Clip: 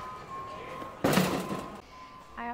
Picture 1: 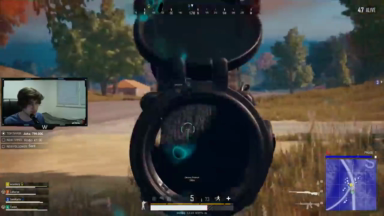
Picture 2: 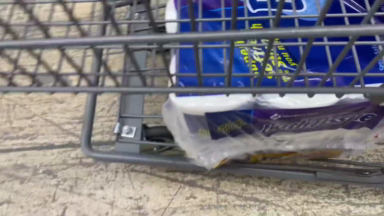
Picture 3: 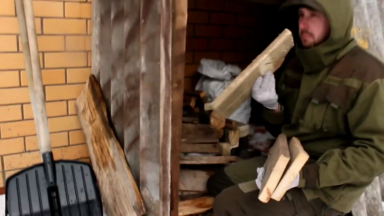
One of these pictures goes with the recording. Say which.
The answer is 2